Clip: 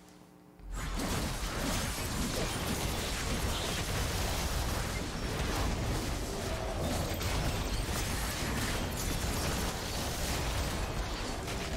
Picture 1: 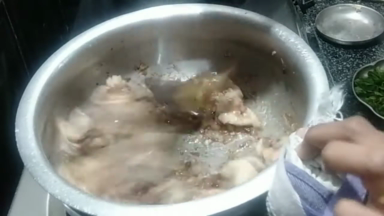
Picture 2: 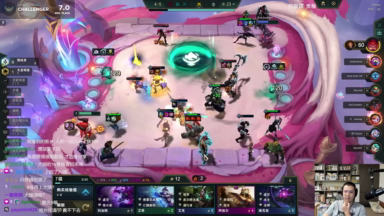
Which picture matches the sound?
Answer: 2